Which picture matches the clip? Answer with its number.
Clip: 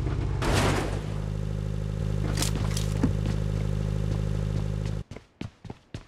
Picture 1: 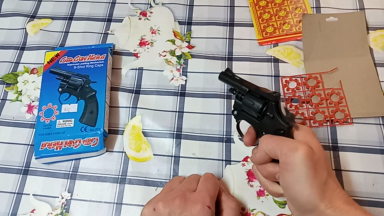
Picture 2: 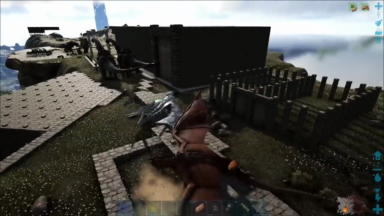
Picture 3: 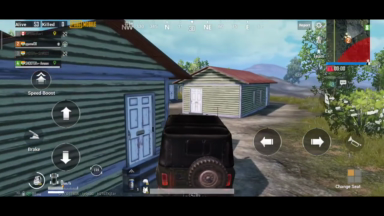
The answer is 3